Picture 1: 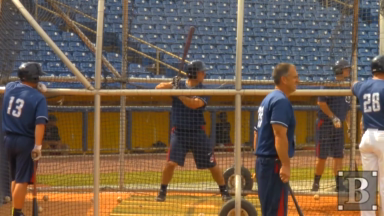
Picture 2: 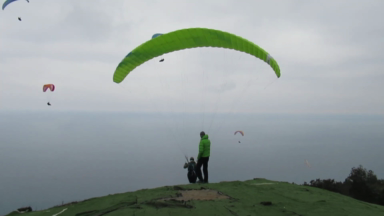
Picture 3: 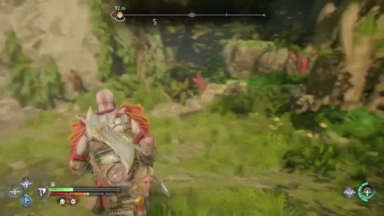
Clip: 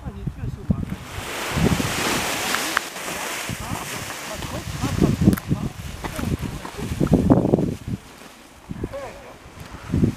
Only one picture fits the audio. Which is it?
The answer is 2